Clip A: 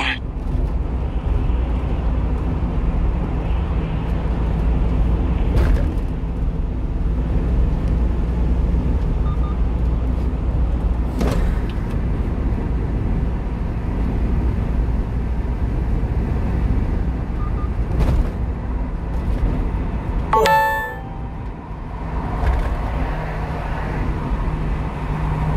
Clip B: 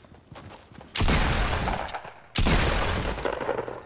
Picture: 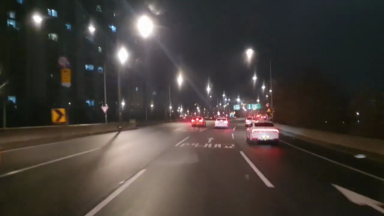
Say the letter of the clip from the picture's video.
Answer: A